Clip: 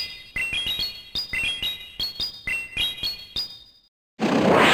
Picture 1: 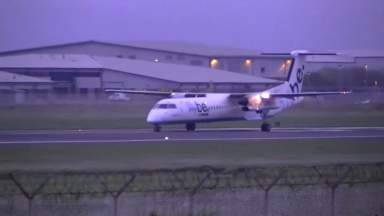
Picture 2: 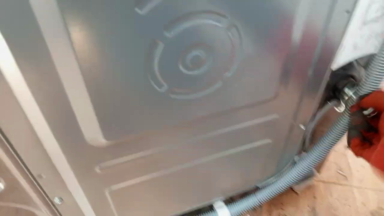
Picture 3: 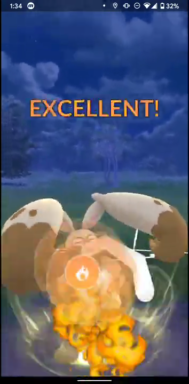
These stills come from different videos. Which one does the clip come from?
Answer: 3